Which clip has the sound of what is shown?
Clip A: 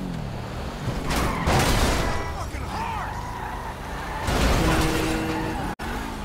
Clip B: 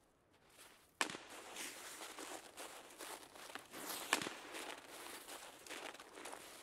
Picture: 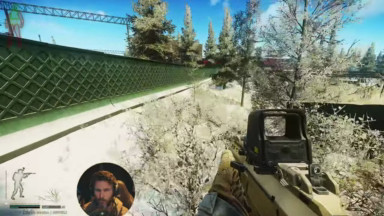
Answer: B